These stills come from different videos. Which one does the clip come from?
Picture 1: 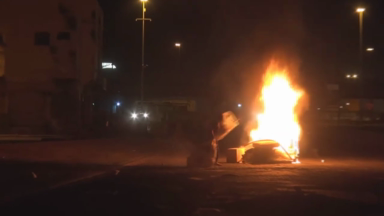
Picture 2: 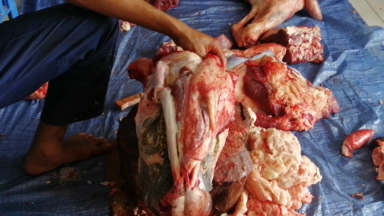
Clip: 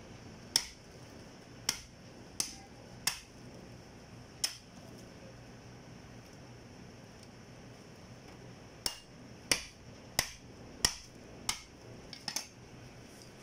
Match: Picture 2